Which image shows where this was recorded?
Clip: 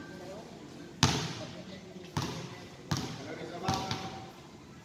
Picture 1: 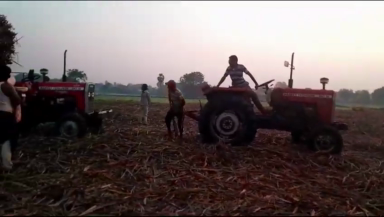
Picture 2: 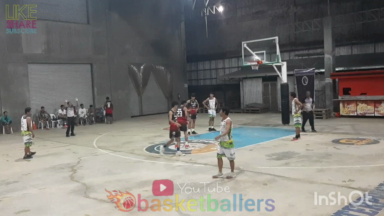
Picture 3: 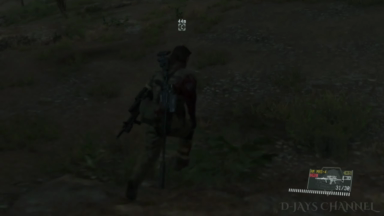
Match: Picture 2